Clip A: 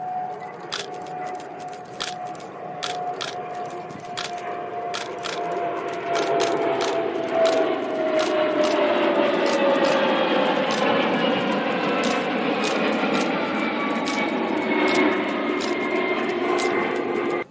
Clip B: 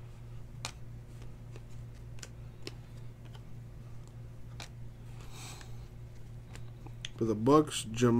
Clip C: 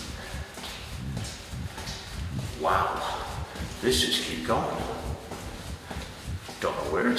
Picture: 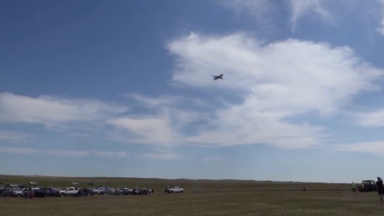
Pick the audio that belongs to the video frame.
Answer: A